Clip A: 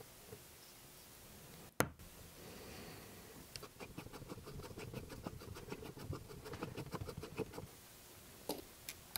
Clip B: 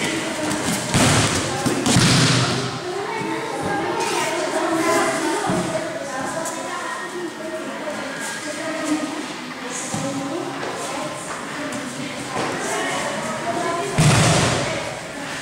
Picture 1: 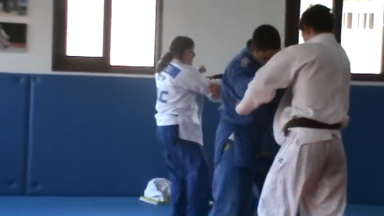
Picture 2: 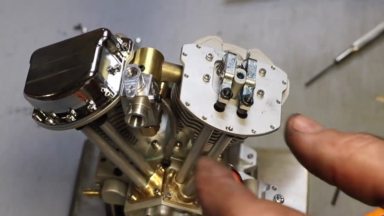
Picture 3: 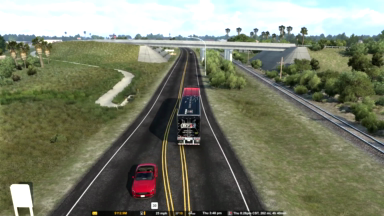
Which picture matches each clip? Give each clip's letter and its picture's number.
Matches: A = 2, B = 1